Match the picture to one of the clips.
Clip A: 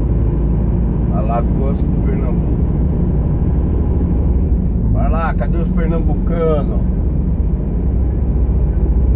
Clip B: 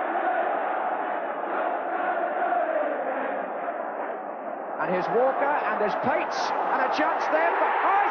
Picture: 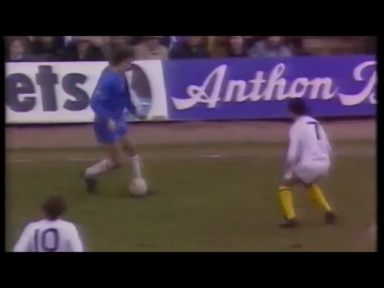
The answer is B